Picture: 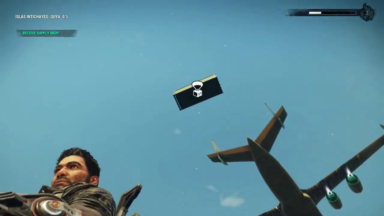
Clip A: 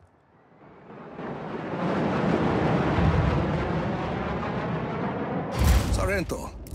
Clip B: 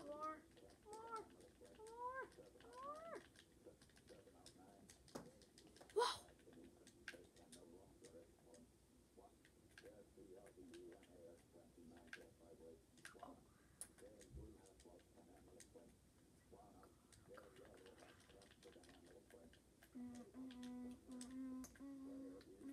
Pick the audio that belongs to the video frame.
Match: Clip A